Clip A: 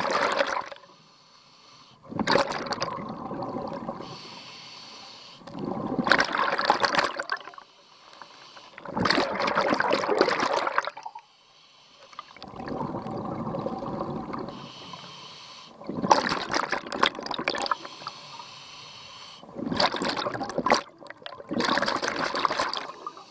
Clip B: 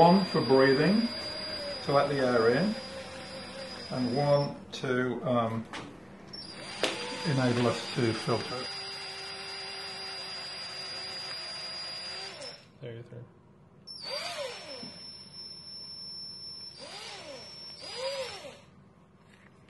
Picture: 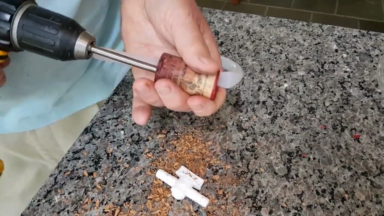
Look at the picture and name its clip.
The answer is B